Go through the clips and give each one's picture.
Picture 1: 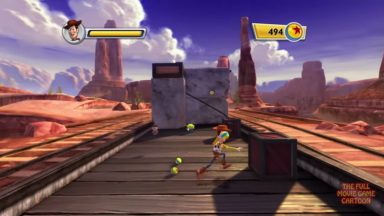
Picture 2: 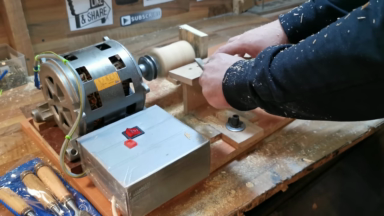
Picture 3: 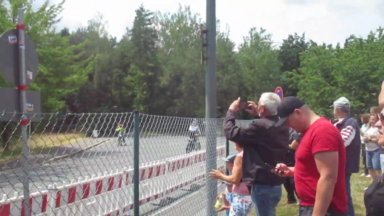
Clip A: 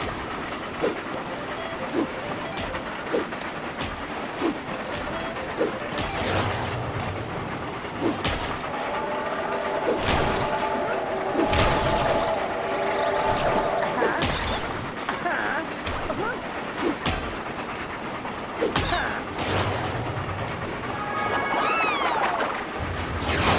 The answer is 1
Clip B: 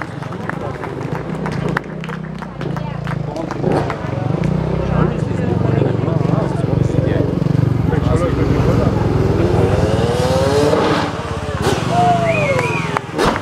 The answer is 3